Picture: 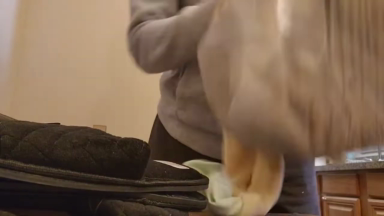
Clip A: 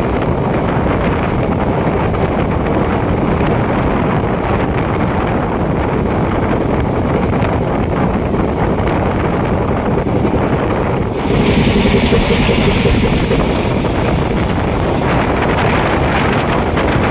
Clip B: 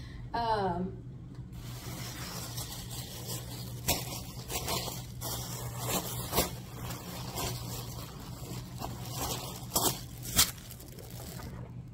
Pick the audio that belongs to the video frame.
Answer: B